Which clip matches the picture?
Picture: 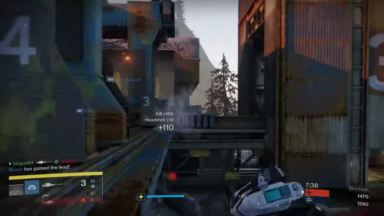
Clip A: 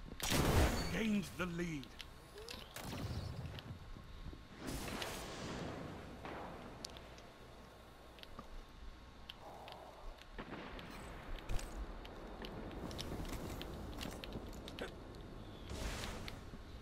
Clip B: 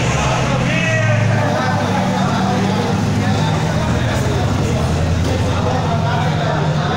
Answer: A